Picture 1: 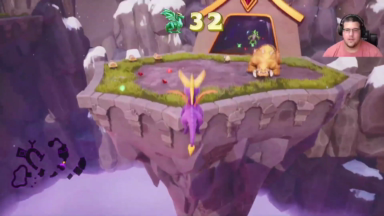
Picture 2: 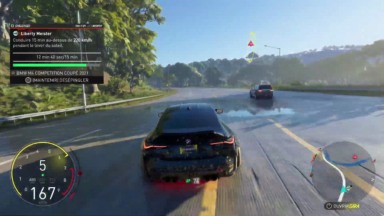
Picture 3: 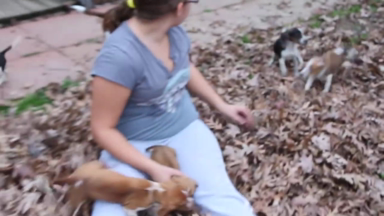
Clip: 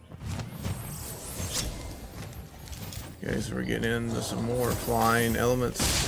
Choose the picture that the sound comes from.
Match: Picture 1